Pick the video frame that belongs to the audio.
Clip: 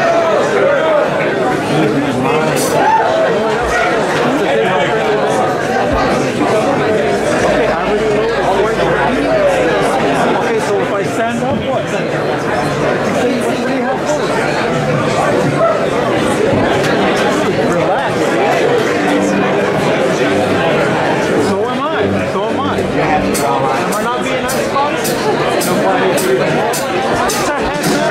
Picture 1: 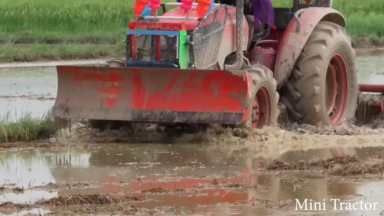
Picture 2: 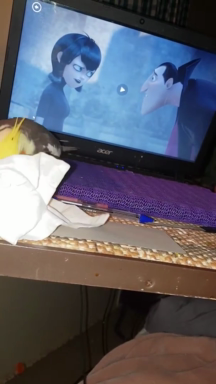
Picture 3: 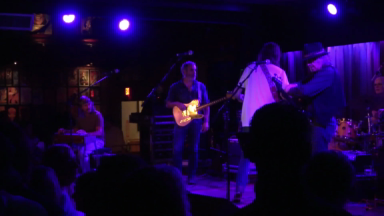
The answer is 3